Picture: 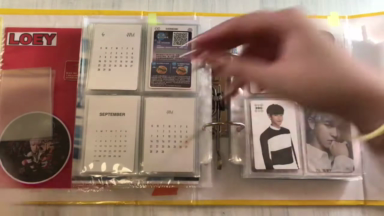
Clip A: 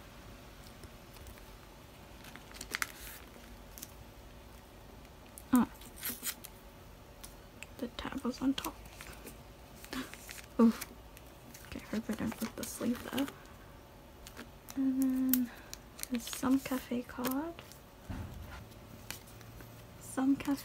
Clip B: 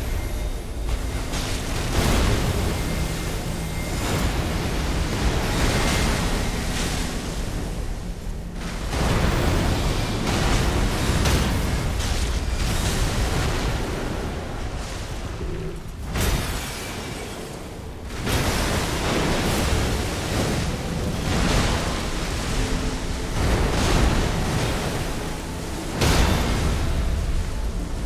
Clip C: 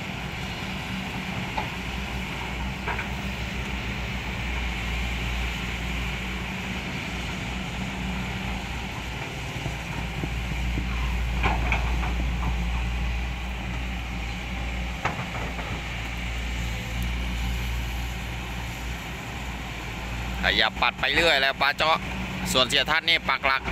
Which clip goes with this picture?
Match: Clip A